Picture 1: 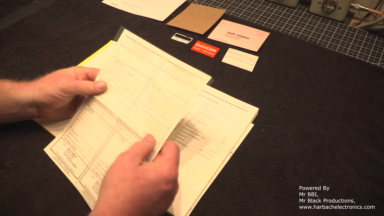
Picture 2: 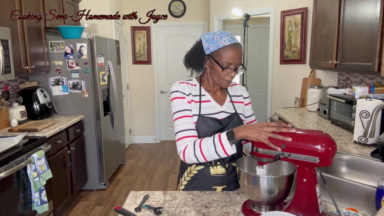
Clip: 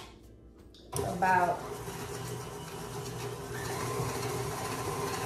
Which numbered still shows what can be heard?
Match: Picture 2